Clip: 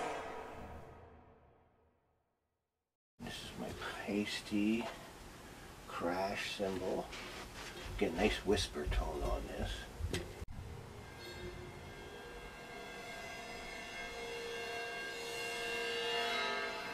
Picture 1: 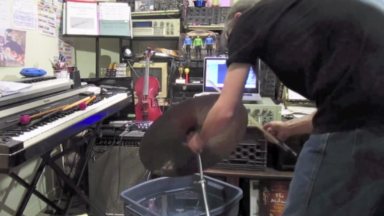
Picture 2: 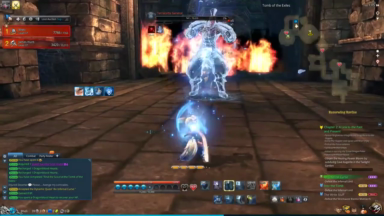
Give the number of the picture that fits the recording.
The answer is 1